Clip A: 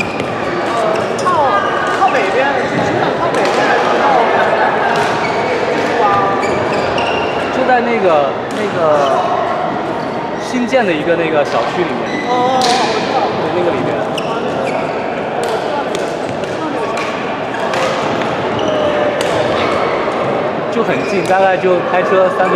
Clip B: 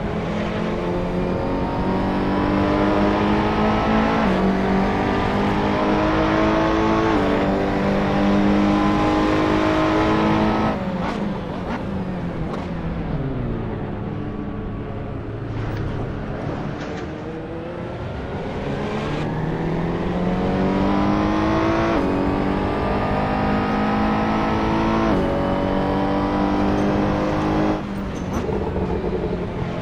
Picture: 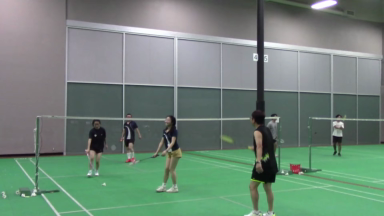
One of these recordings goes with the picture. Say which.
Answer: A